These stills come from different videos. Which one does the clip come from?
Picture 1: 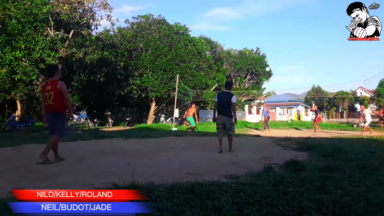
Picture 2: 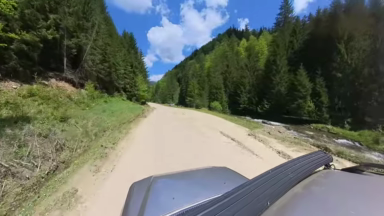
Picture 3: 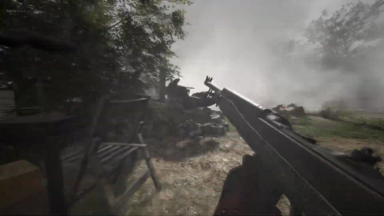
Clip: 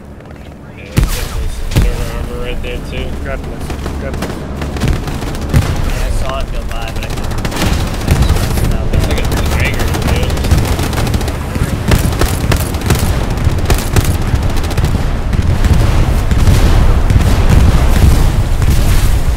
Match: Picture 3